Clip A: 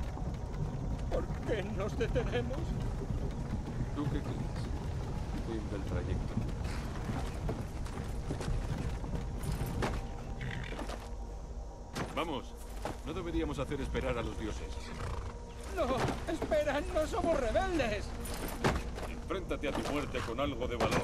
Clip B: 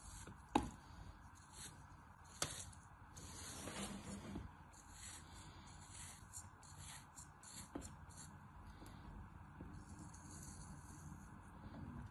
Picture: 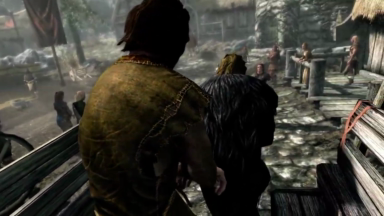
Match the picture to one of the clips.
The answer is A